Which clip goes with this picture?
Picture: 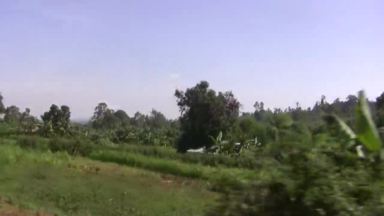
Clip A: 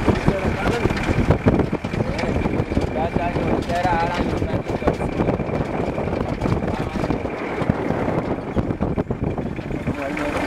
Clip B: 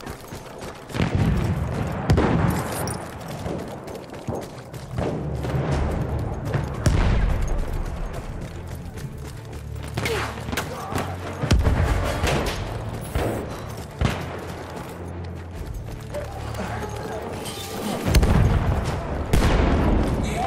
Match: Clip A